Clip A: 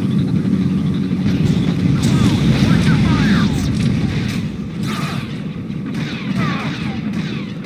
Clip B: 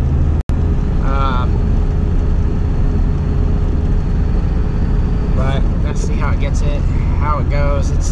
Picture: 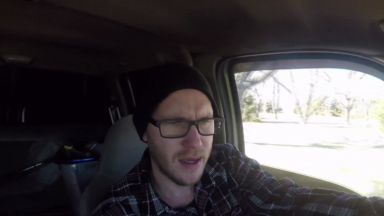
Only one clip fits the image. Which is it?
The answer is B